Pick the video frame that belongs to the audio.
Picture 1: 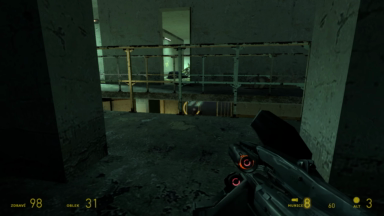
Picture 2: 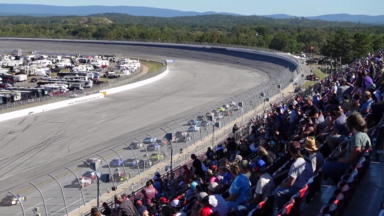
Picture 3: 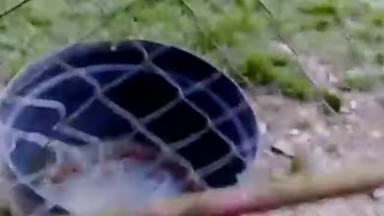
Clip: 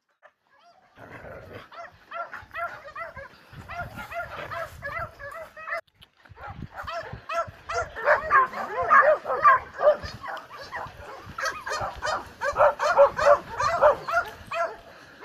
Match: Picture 3